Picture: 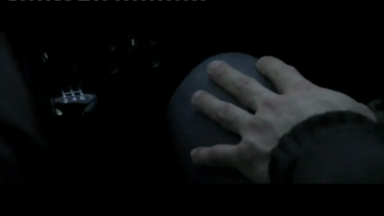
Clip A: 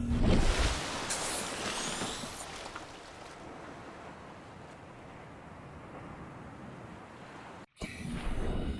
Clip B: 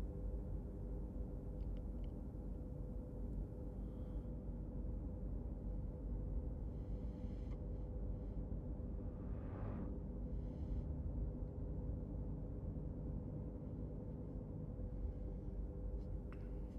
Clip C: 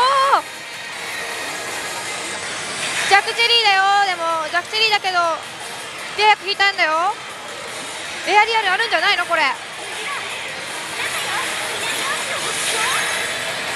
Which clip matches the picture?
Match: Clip B